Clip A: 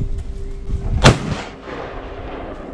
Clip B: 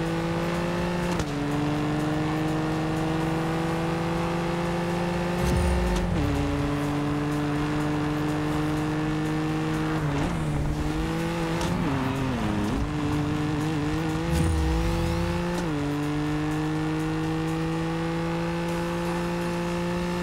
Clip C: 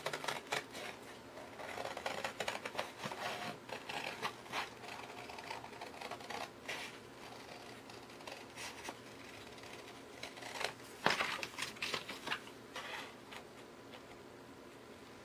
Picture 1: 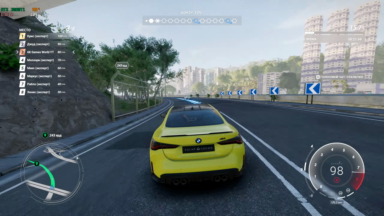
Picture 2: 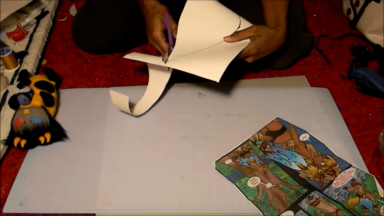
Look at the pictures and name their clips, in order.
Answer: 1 B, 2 C